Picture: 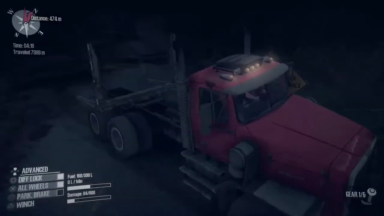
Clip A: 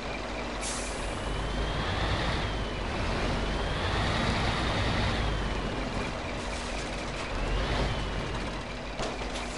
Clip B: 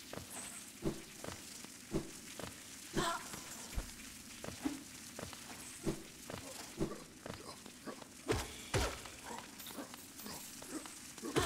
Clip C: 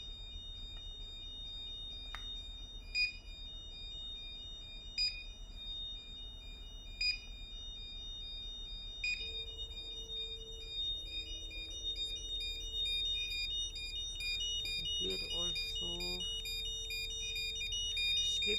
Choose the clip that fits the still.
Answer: A